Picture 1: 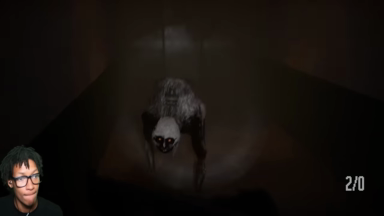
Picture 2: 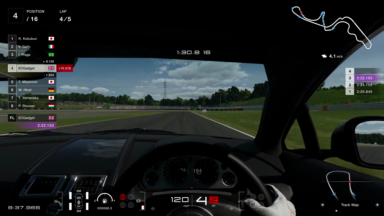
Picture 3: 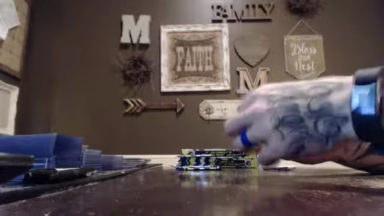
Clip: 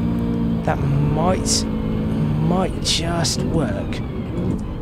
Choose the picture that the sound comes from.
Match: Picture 2